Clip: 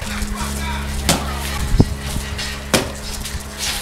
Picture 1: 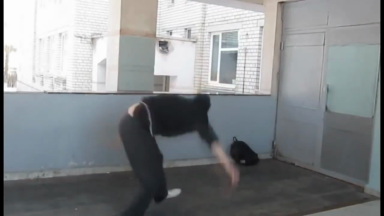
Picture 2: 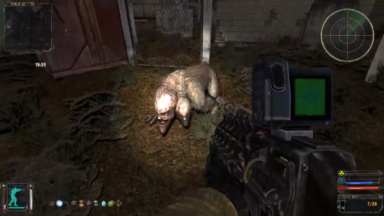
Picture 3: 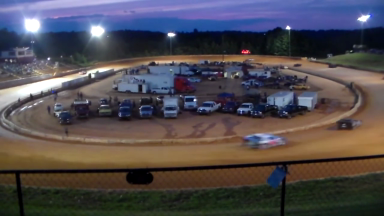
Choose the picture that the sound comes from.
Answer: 1